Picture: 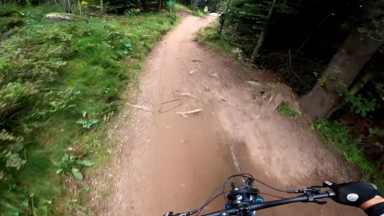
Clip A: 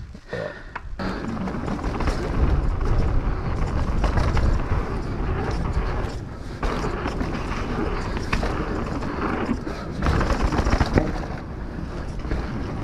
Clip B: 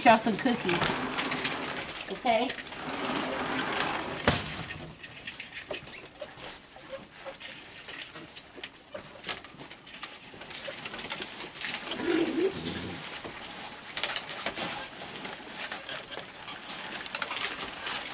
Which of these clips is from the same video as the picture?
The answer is A